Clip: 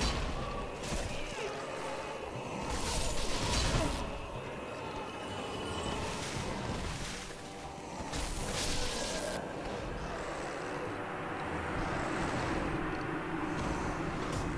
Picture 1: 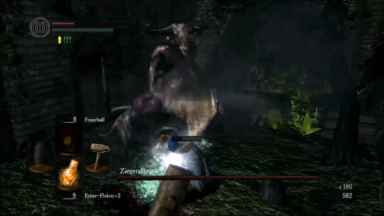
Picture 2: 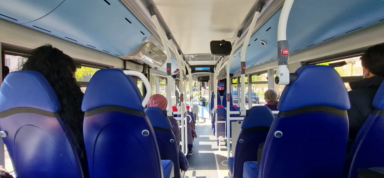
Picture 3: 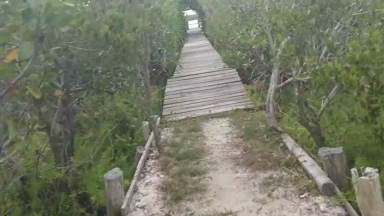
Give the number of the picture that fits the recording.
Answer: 1